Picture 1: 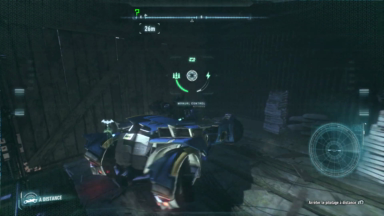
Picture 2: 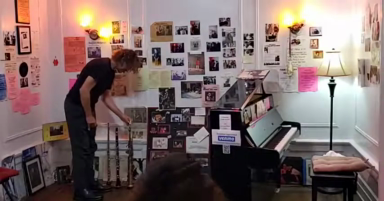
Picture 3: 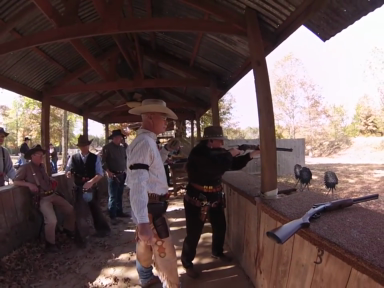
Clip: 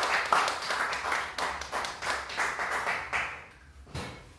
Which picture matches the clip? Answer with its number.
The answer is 2